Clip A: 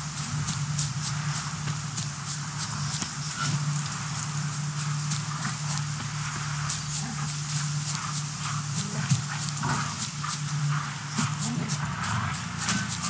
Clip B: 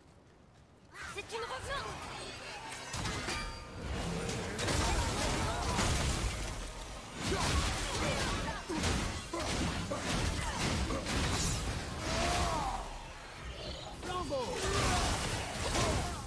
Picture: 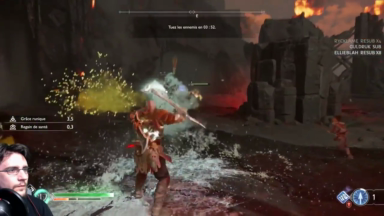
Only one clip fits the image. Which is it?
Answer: B